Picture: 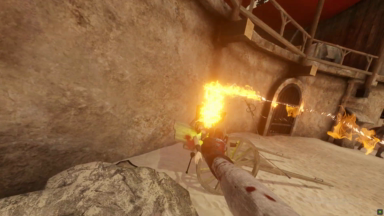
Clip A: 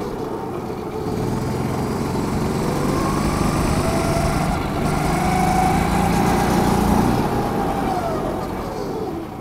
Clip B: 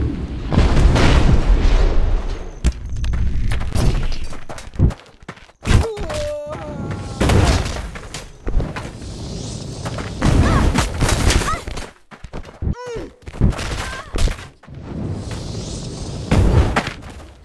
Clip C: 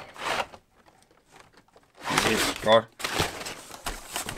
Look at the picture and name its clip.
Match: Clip B